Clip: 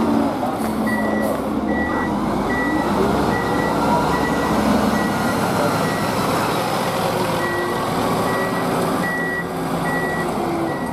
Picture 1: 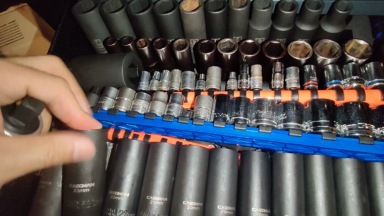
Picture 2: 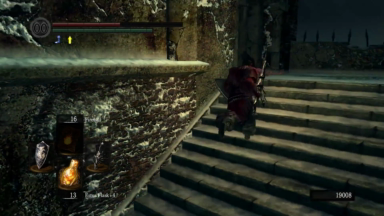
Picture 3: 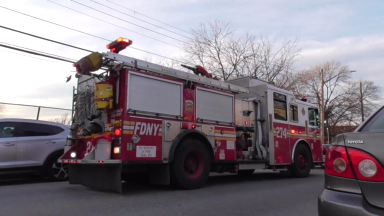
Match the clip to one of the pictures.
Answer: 3